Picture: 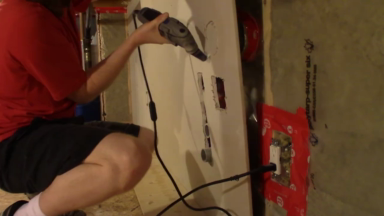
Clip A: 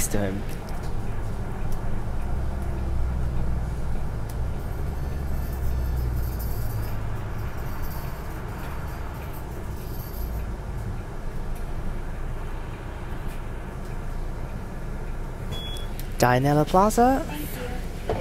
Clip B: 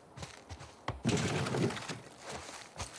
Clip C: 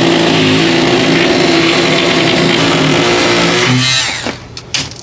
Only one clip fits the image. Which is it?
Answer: C